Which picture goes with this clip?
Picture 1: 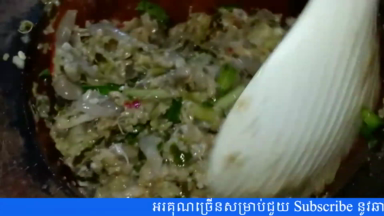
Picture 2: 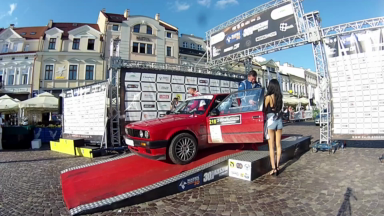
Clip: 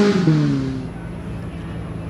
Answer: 2